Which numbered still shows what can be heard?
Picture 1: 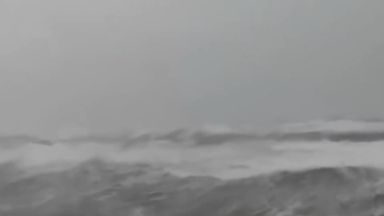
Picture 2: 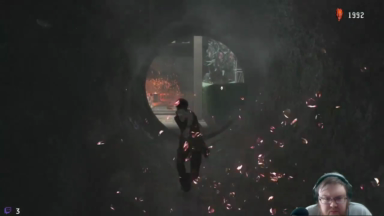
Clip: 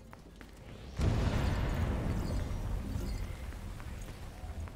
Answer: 2